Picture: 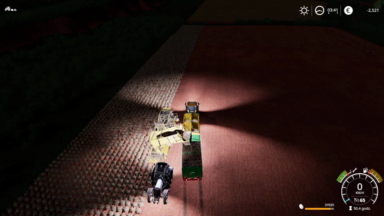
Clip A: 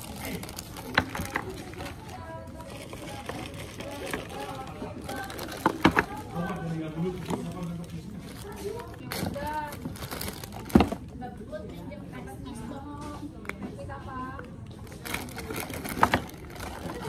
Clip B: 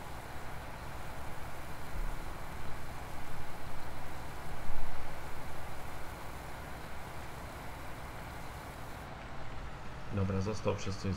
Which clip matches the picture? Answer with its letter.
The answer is B